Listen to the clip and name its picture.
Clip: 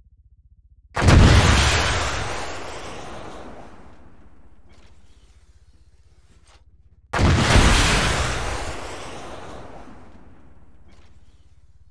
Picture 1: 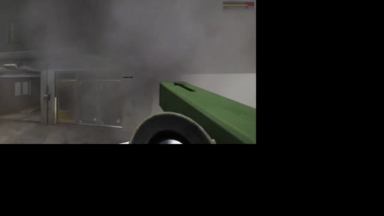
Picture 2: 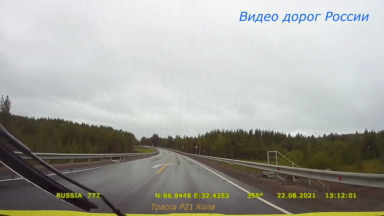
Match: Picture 1